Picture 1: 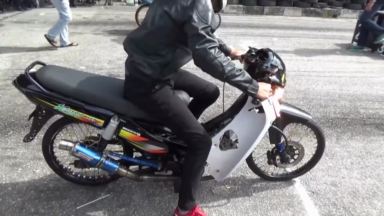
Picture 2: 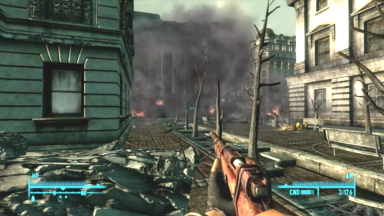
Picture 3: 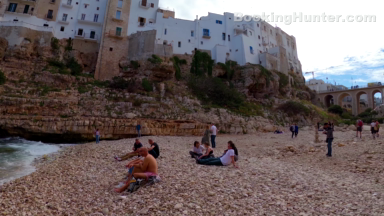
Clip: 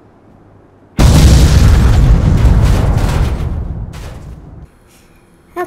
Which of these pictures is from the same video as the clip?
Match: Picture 2